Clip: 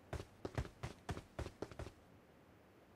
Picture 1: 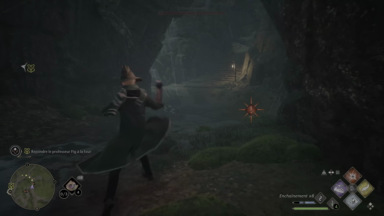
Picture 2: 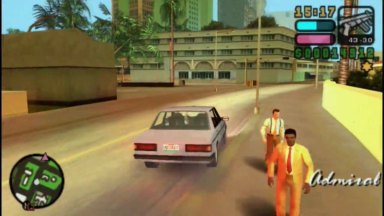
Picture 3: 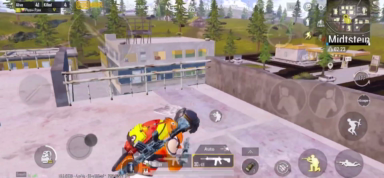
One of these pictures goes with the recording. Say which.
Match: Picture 3